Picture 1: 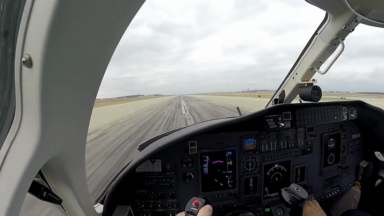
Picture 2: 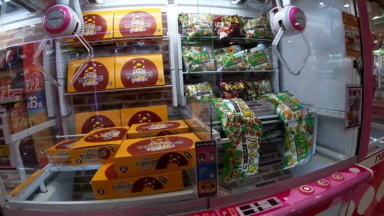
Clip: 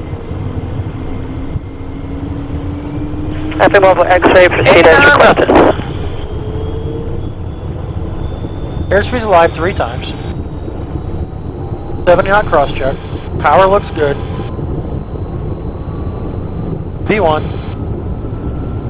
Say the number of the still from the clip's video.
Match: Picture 1